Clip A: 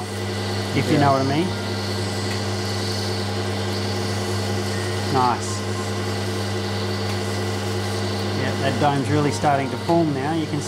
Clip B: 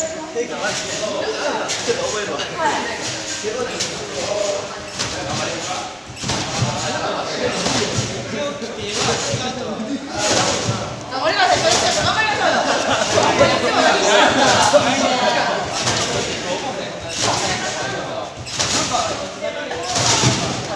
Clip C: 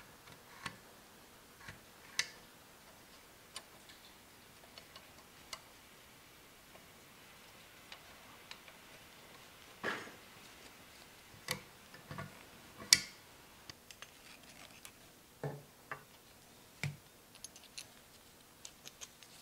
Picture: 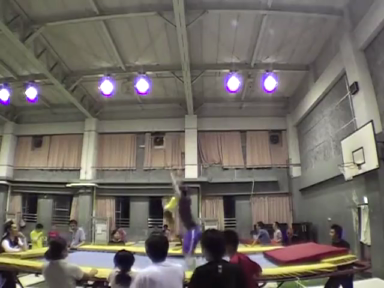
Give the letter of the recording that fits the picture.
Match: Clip B